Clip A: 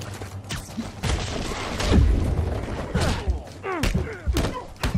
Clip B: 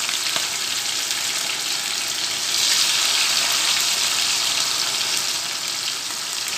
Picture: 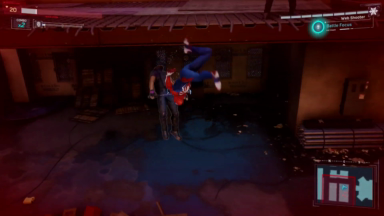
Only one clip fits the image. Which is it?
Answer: A